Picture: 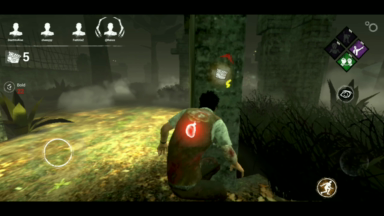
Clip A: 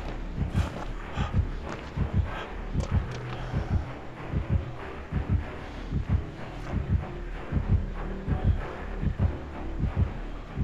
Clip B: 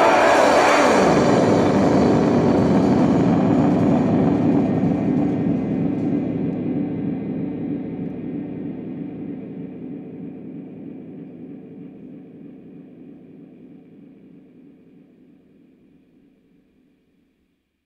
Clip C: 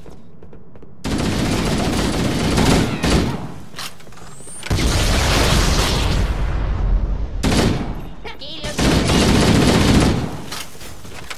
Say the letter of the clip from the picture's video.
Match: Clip A